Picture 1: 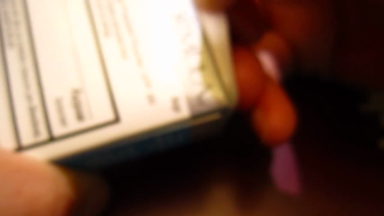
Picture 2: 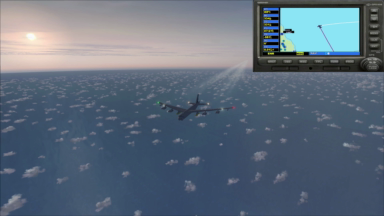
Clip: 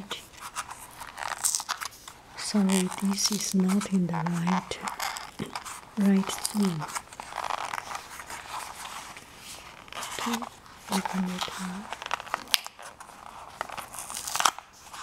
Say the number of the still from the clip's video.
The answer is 1